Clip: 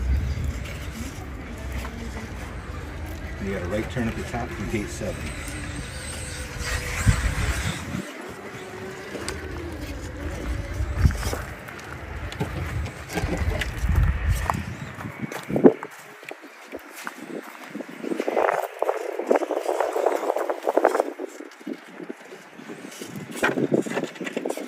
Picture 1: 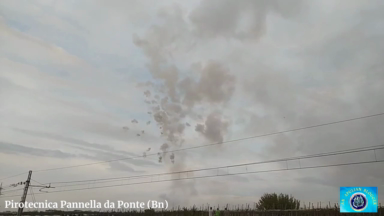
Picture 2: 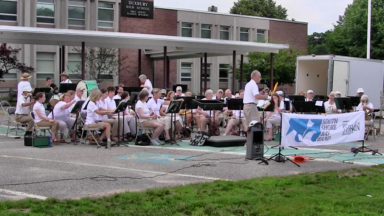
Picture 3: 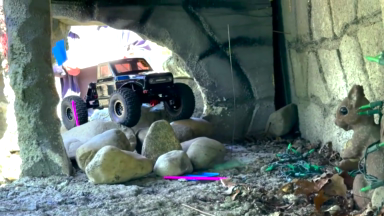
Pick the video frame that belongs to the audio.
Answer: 3